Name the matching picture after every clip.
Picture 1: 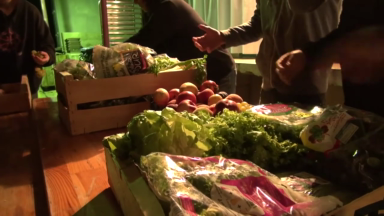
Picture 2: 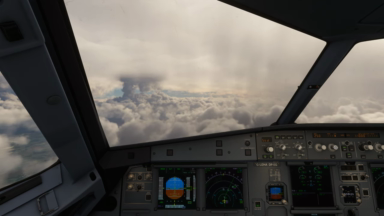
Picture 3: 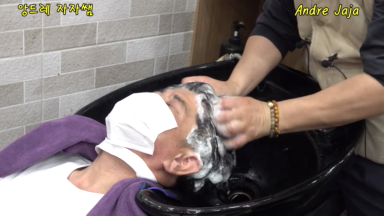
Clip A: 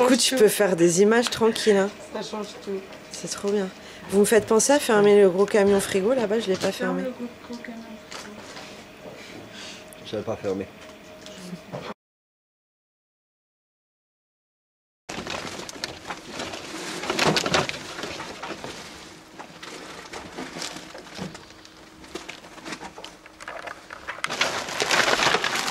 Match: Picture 1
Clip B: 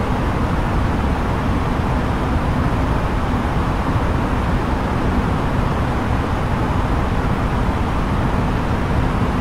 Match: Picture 2